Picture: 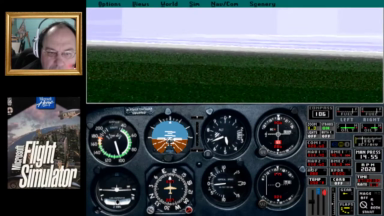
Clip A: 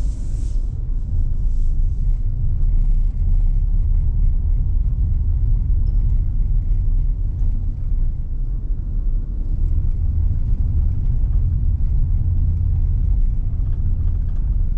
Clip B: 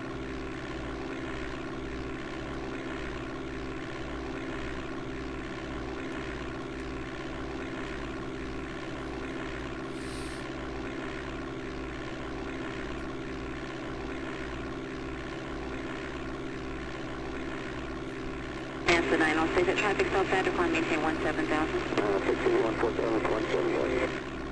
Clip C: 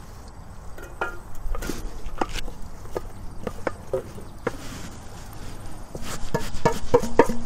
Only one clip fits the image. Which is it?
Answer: B